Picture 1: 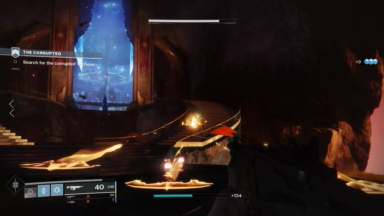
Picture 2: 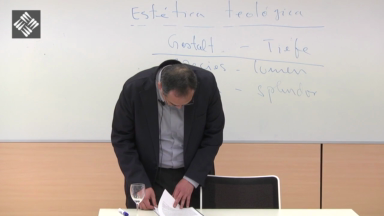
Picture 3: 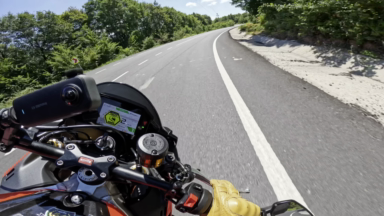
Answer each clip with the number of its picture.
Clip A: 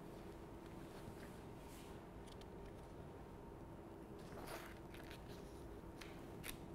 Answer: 2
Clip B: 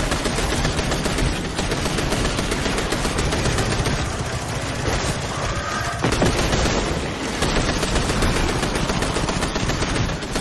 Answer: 1